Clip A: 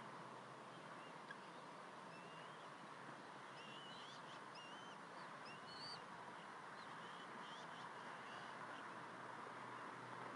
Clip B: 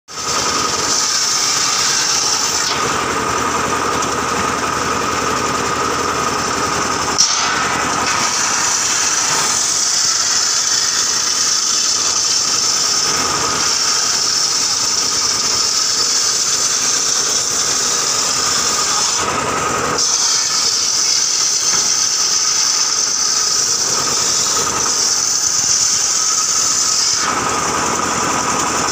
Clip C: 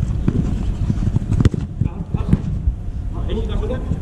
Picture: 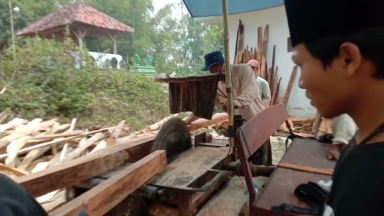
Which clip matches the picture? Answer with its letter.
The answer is B